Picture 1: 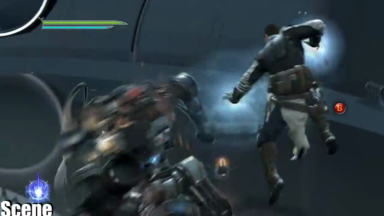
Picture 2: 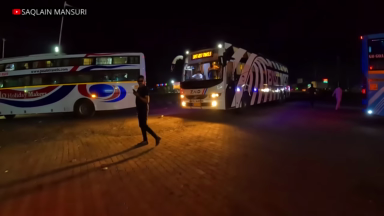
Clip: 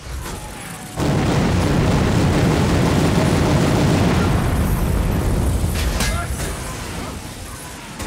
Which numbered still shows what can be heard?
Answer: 1